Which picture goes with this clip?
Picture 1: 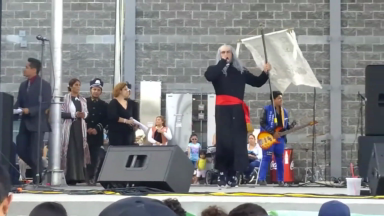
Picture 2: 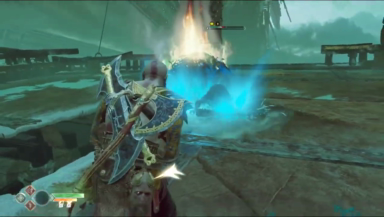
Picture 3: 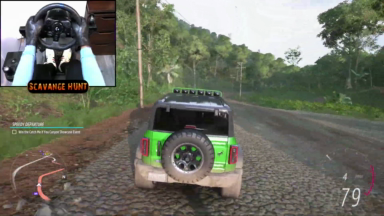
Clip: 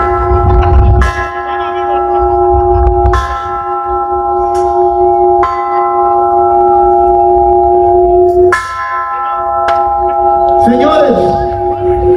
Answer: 1